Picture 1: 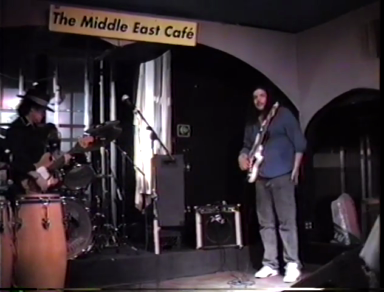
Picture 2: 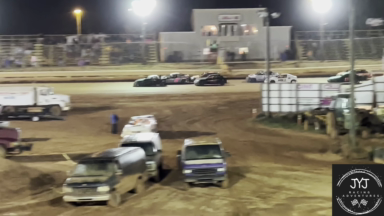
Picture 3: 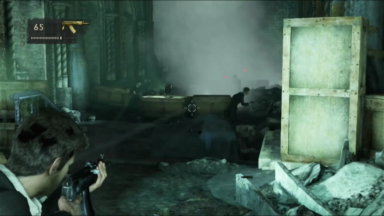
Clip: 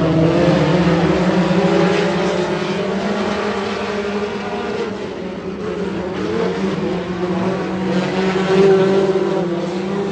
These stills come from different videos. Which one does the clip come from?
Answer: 2